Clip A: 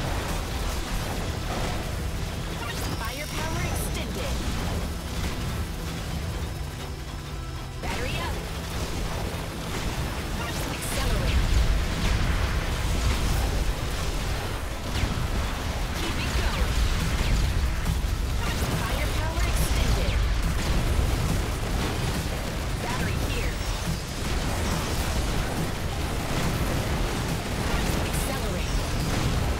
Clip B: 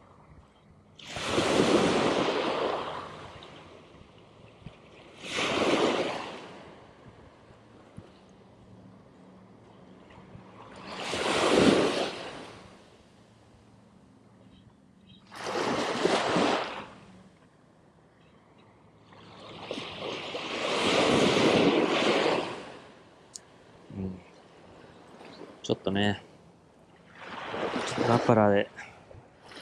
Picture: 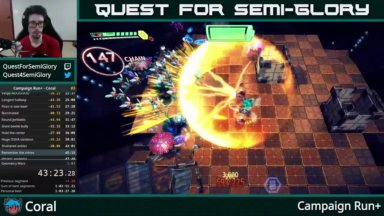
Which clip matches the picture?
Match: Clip A